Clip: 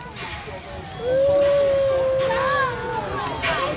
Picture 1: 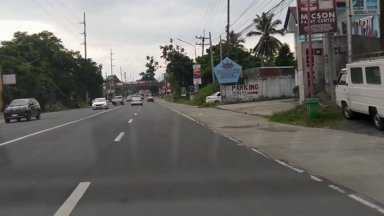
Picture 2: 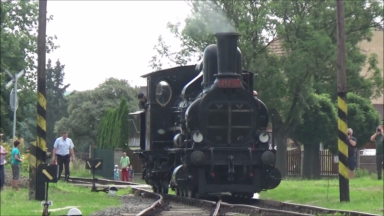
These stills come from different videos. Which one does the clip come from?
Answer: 2